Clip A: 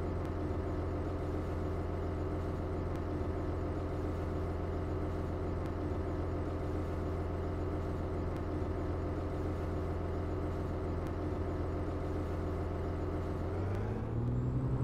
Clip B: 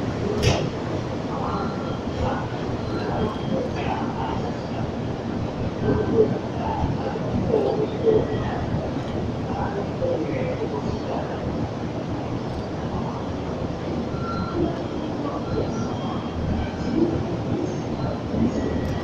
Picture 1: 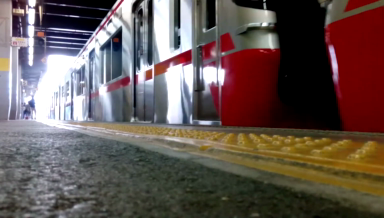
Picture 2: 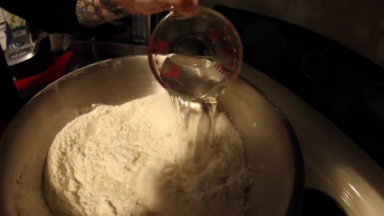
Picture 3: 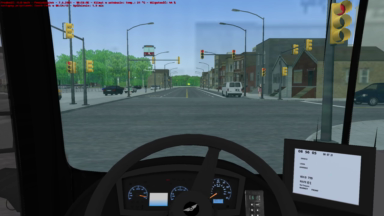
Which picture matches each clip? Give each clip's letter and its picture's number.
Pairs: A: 3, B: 1